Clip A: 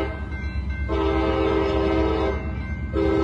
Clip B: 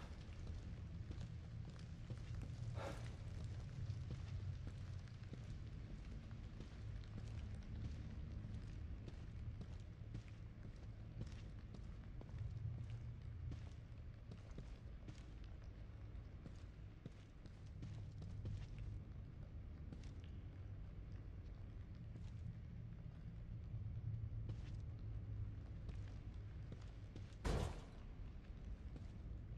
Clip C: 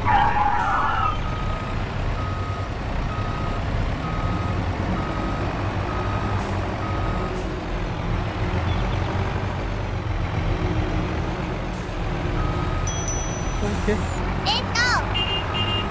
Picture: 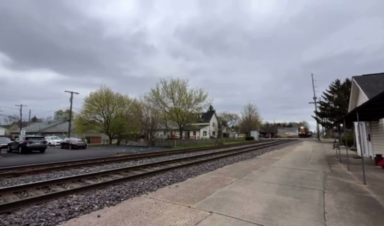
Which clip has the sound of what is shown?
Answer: A